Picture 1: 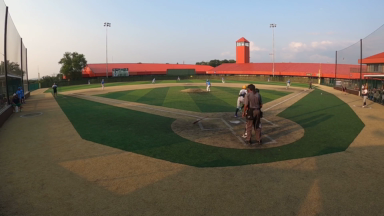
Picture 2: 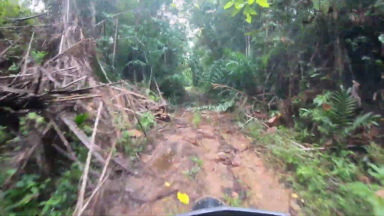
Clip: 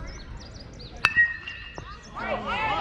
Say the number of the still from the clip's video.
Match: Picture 1